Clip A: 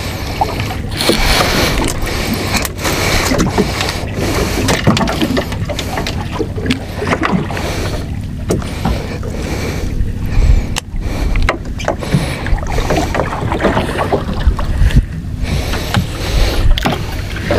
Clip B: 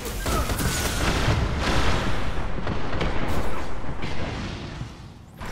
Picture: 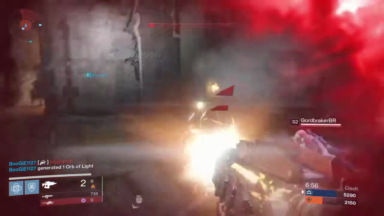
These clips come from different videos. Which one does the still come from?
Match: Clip B